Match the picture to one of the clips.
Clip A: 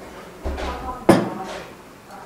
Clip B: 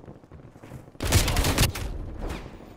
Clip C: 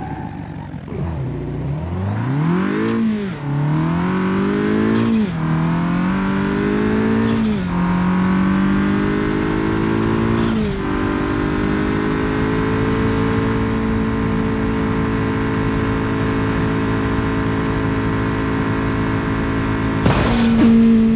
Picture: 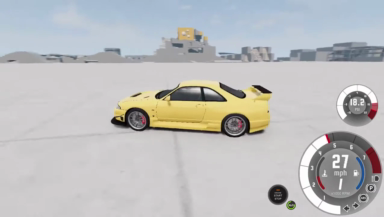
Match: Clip C